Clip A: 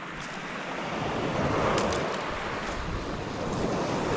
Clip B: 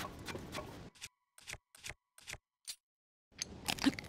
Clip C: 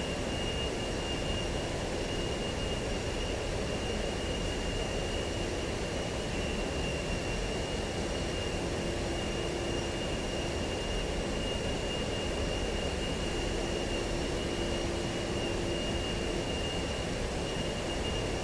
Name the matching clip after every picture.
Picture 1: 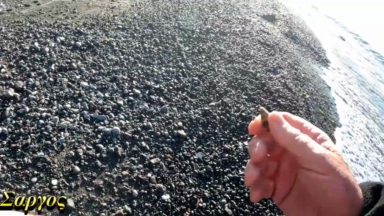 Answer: A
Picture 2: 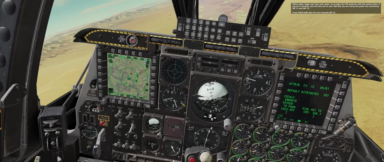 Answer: C